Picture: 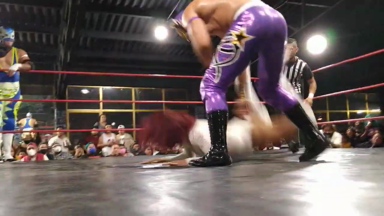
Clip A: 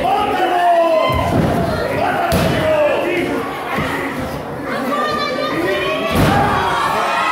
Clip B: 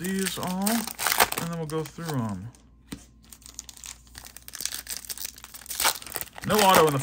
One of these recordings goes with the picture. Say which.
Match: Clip A